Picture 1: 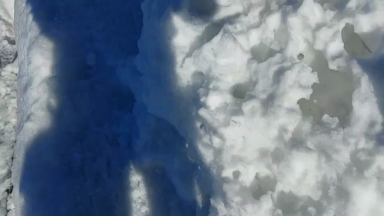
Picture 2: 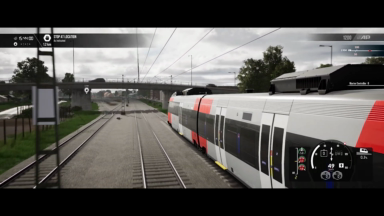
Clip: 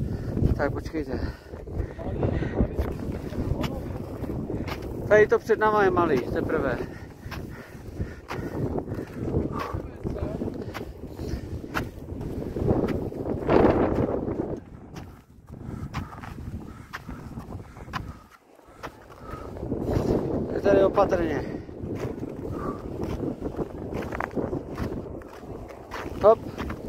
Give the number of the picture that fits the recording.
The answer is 1